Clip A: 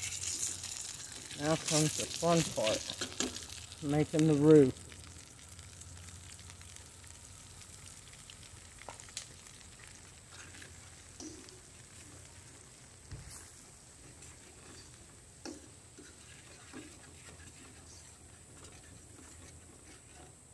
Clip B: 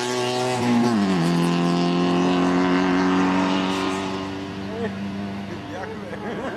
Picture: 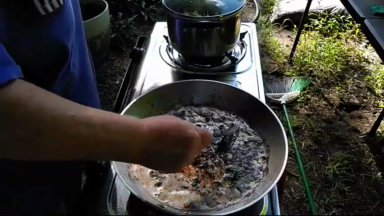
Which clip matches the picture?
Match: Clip A